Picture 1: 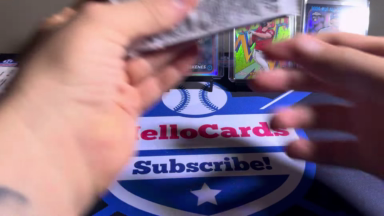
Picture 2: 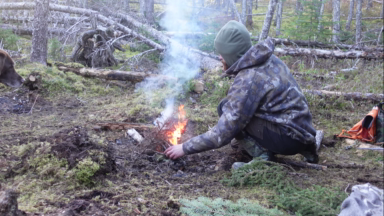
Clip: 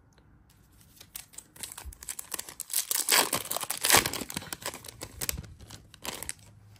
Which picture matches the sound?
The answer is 1